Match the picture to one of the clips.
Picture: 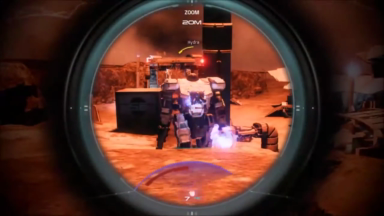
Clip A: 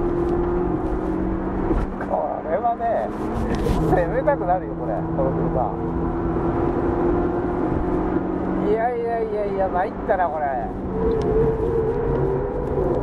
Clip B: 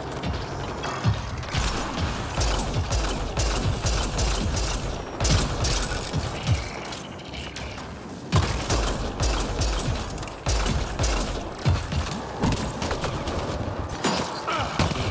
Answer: B